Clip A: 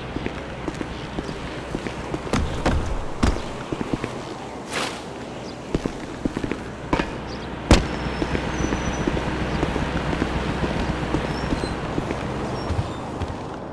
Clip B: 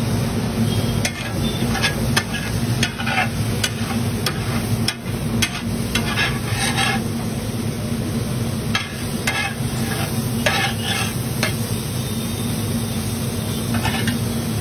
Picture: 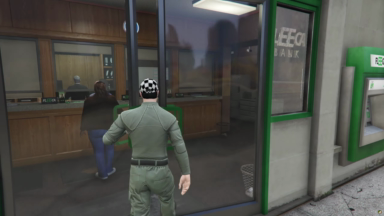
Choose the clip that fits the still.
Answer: A